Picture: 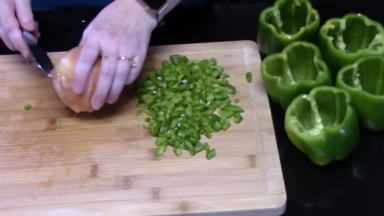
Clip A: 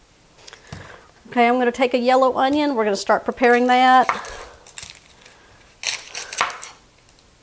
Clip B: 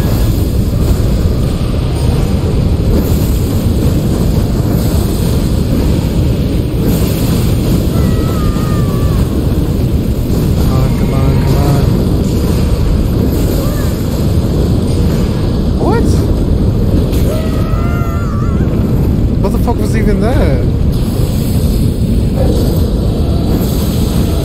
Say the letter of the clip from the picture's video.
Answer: A